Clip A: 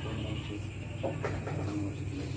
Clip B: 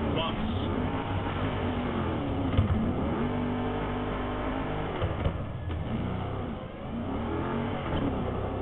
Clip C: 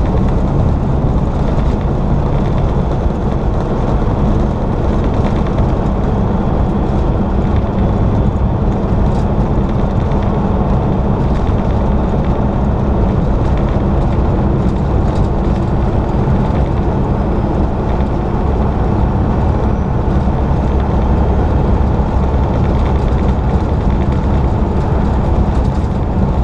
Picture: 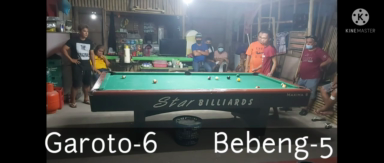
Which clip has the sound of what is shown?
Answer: A